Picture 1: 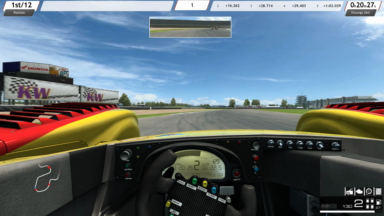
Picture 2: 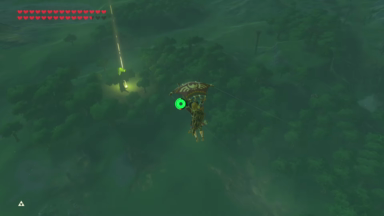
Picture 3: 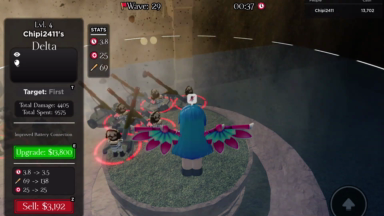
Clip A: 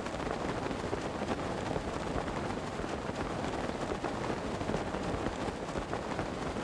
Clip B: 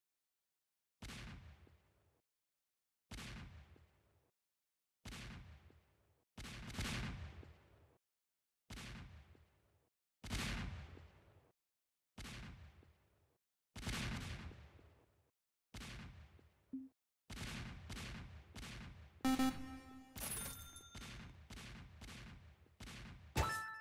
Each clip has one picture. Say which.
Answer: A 2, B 3